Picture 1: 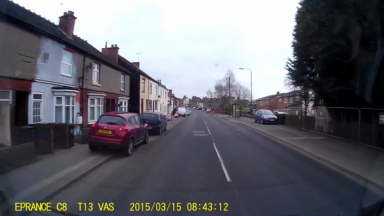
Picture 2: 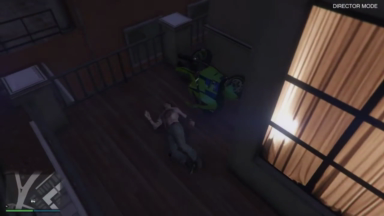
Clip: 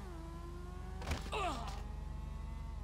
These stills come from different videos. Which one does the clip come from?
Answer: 2